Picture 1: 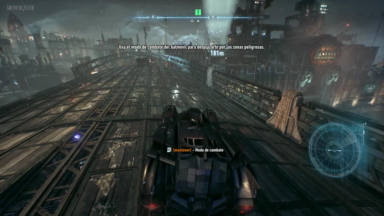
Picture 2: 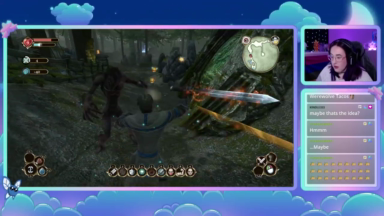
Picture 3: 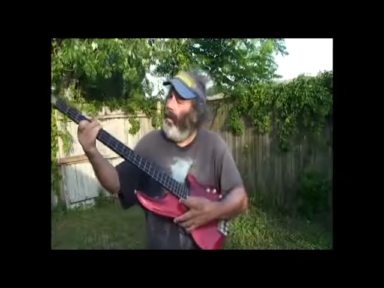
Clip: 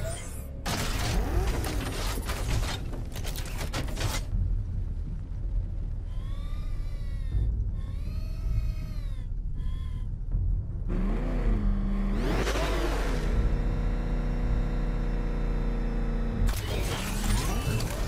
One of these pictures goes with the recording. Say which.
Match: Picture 1